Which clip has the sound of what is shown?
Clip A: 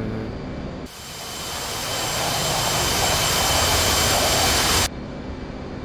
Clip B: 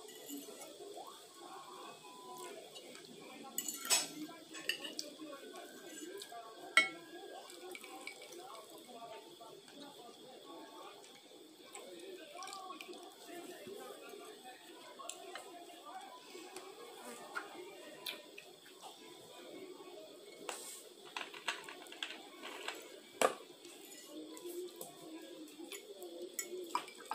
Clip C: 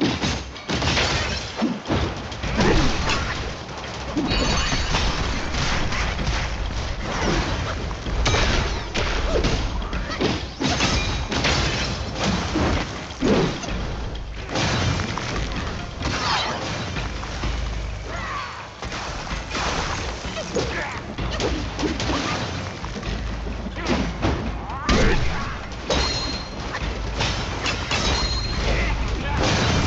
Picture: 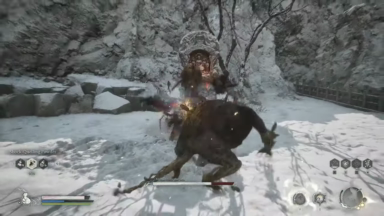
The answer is C